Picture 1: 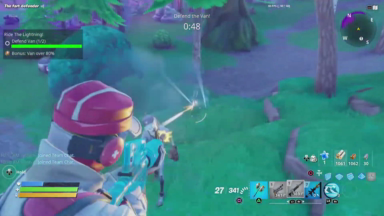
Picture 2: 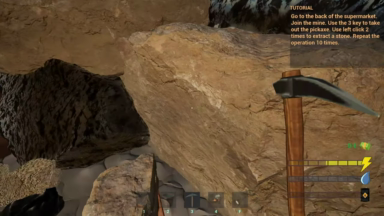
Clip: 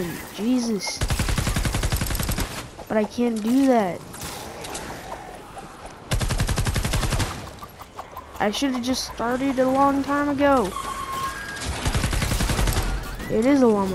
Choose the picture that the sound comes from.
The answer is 1